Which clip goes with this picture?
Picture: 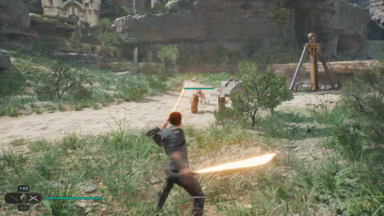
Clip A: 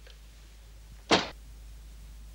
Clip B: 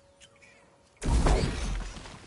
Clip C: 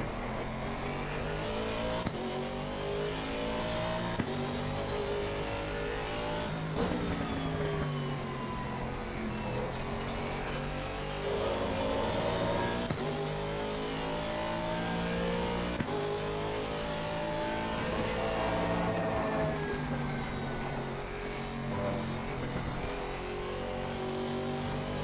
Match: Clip B